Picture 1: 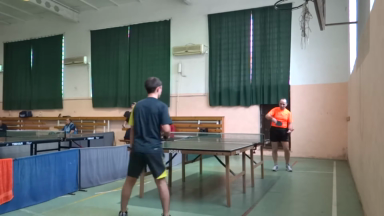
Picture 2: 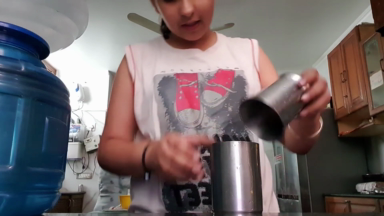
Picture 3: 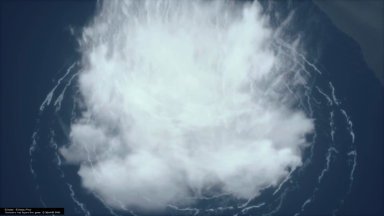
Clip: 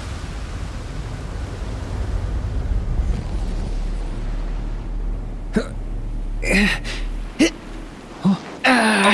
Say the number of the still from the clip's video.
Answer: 3